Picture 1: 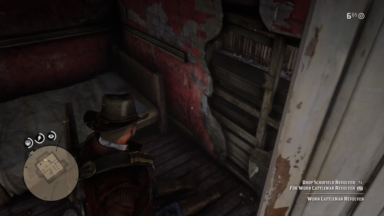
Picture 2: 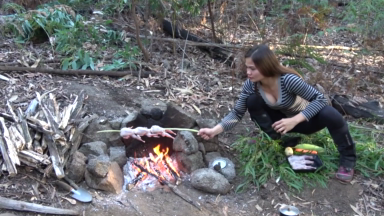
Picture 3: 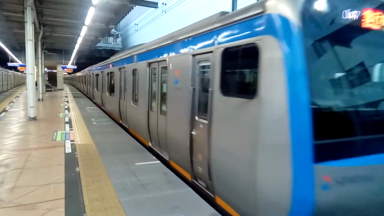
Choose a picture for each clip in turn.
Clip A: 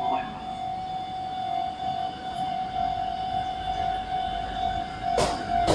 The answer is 3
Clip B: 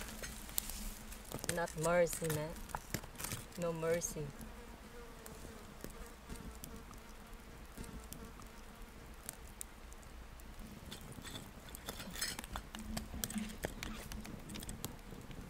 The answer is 2